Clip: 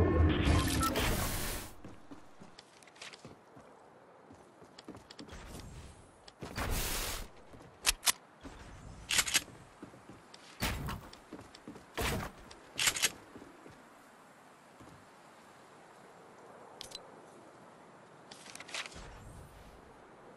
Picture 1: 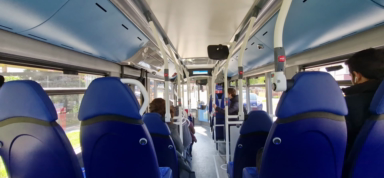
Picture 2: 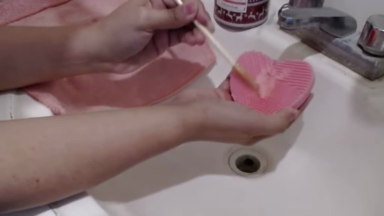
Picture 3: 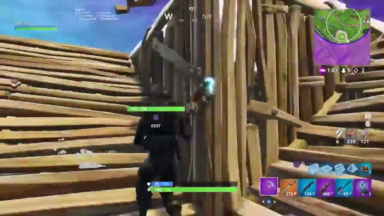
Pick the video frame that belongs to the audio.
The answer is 3